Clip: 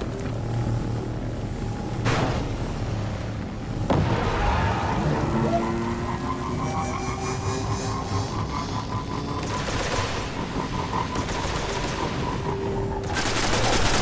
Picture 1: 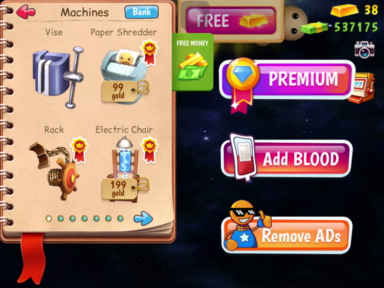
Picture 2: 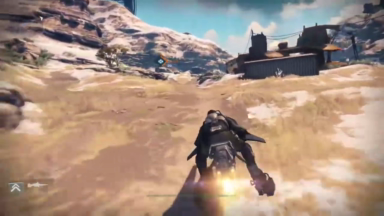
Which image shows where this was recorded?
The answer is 2